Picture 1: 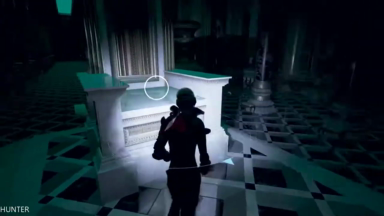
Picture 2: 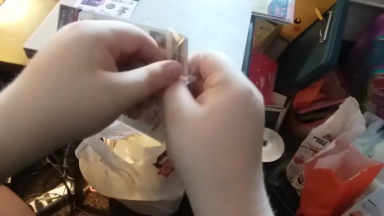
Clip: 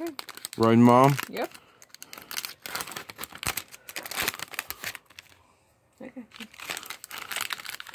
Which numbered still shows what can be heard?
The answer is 2